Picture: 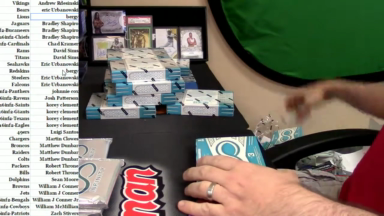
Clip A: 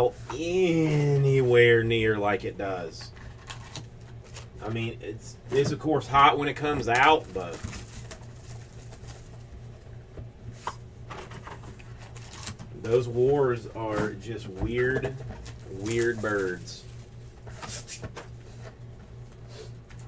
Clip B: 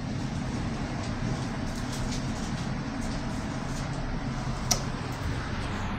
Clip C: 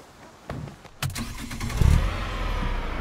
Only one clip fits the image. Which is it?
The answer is A